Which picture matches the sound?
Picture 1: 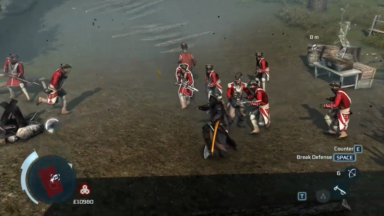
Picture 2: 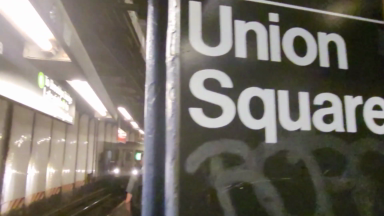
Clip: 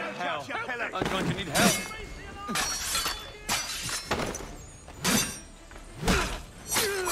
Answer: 1